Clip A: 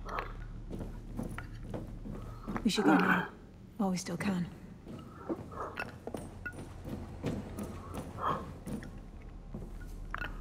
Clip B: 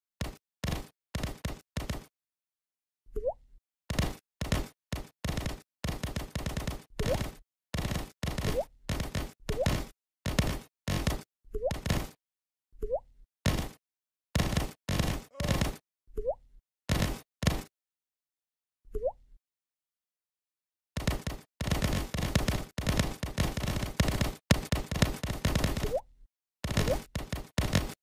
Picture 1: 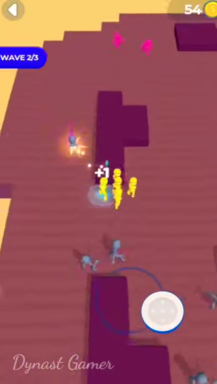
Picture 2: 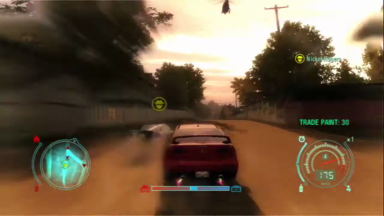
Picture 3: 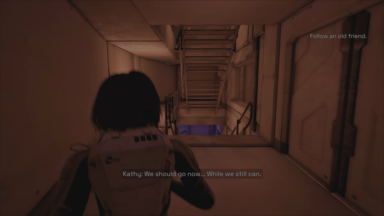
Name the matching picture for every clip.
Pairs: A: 3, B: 1